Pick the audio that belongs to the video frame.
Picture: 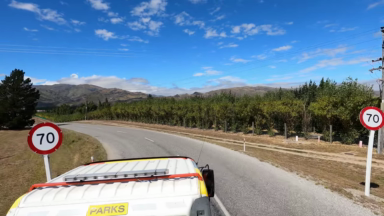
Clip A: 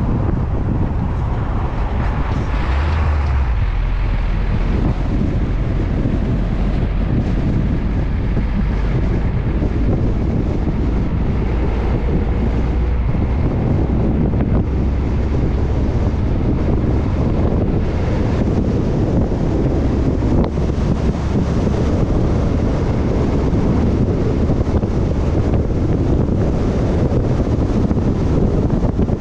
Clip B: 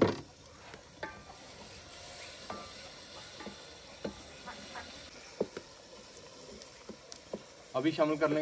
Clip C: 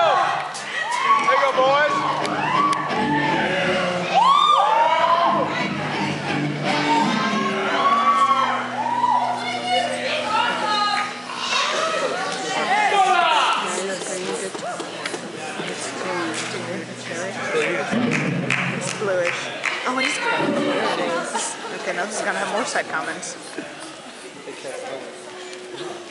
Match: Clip A